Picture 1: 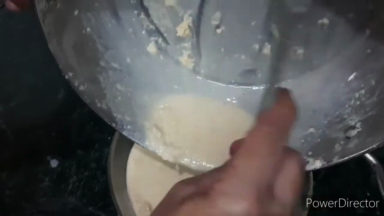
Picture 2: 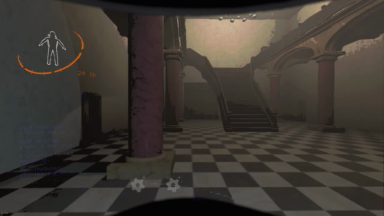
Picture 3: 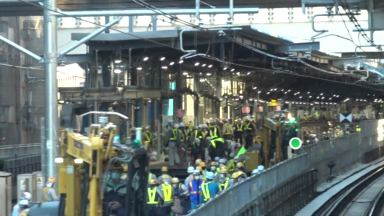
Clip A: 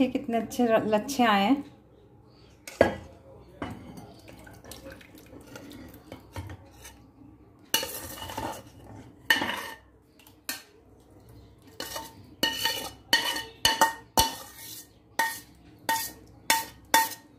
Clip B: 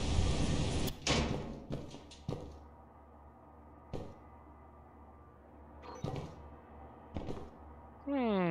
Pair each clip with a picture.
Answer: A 1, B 2